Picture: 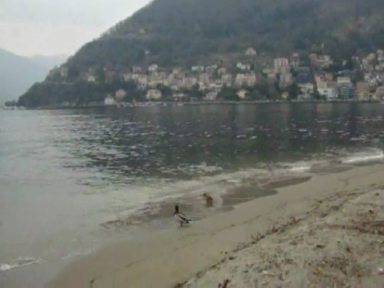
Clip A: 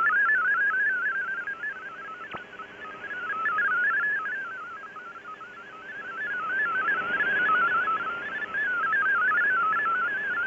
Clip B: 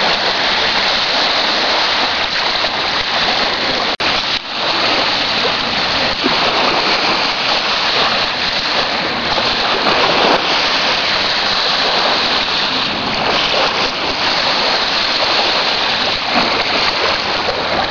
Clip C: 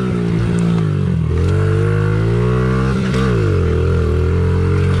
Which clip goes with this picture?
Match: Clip B